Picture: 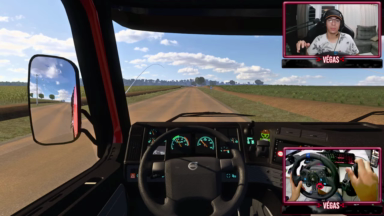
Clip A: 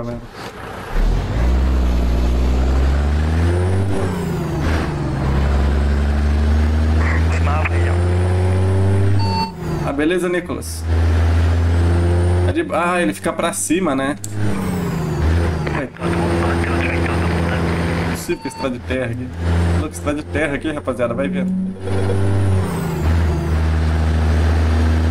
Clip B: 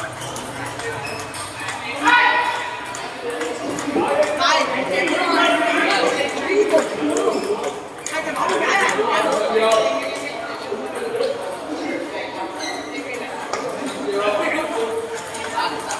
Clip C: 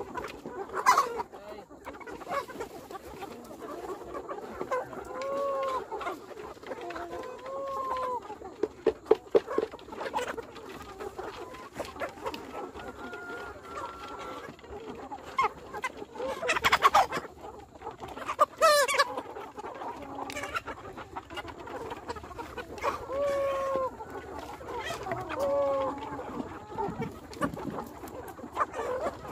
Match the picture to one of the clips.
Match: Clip A